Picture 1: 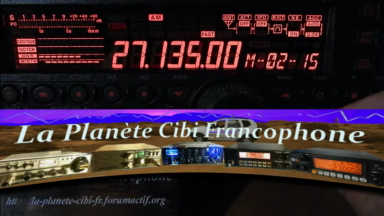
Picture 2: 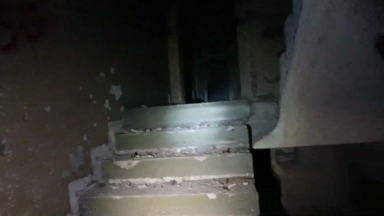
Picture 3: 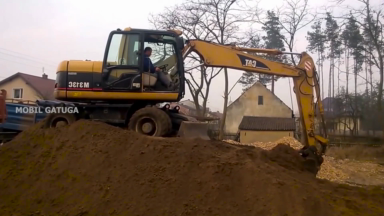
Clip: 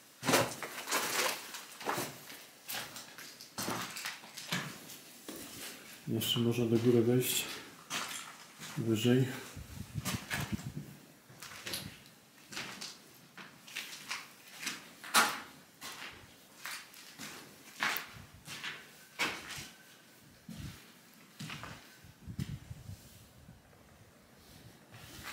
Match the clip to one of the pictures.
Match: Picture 2